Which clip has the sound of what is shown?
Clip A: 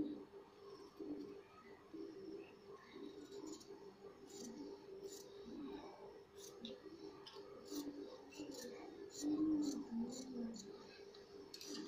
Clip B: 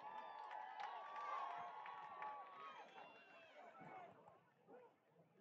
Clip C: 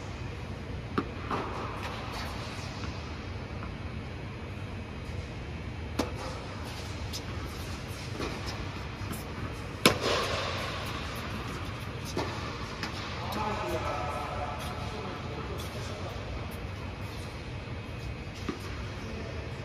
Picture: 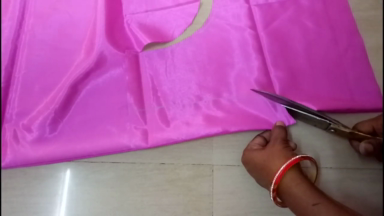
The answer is A